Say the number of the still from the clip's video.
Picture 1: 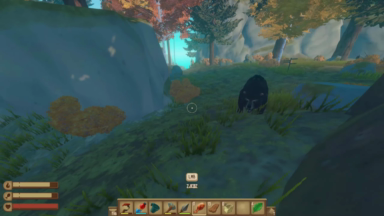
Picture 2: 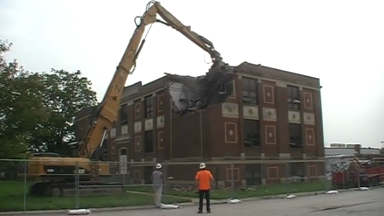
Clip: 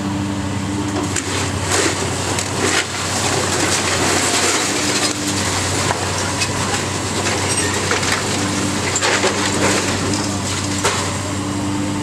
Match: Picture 2